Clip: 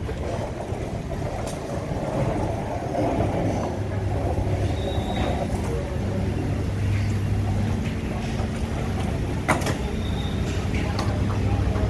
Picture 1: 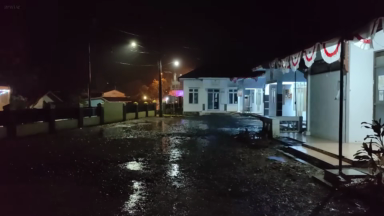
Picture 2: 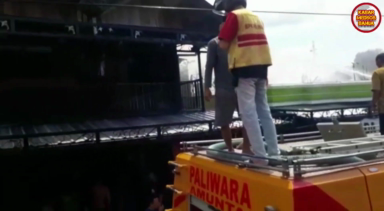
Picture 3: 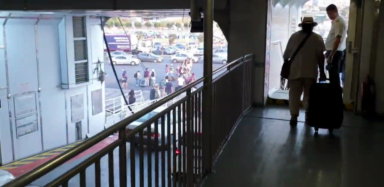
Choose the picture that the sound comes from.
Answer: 3